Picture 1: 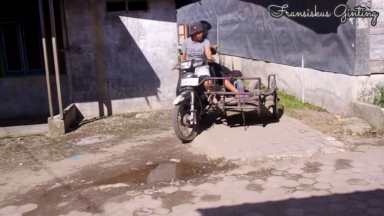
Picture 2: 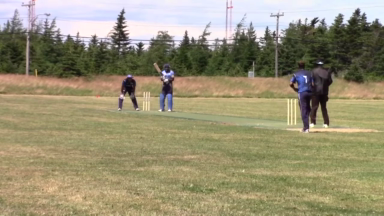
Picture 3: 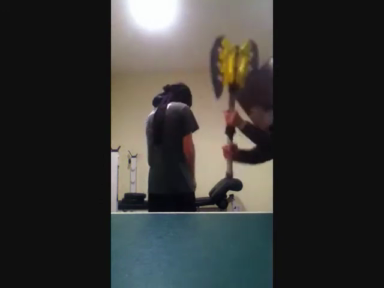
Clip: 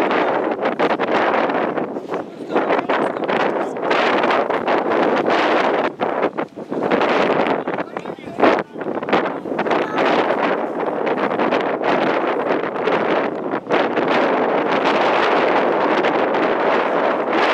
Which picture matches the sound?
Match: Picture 2